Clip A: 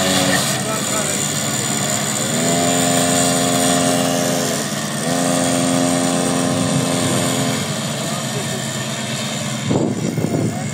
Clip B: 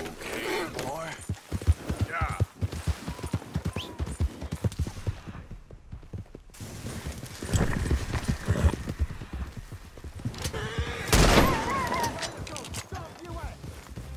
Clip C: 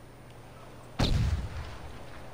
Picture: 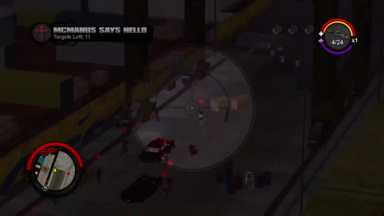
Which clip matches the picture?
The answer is C